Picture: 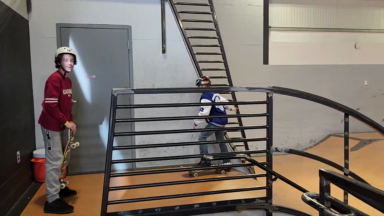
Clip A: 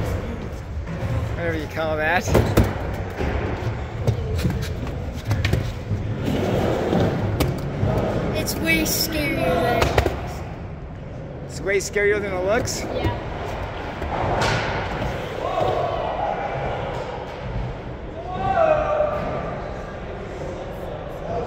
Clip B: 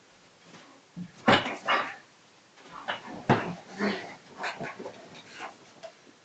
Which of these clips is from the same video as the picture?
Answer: A